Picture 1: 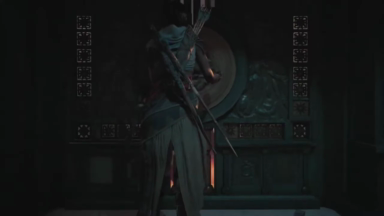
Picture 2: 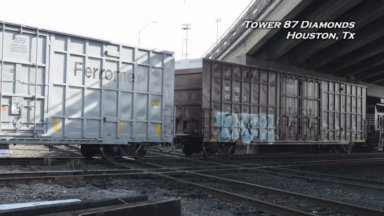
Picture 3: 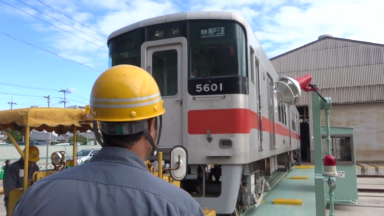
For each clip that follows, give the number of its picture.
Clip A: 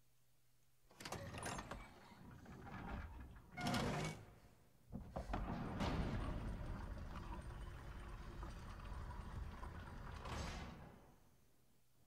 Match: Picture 1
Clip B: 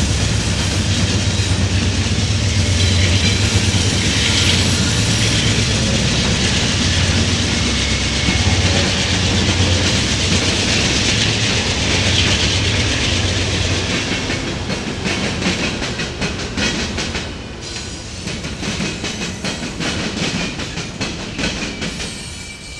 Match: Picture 2